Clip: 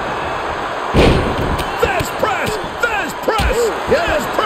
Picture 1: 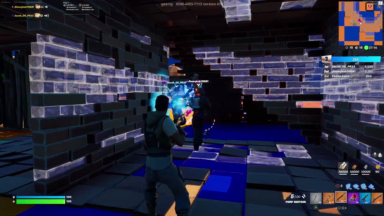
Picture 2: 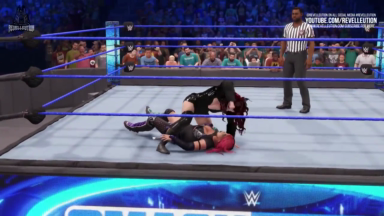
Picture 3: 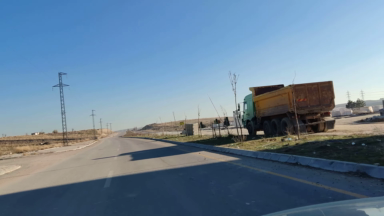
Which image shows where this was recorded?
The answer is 2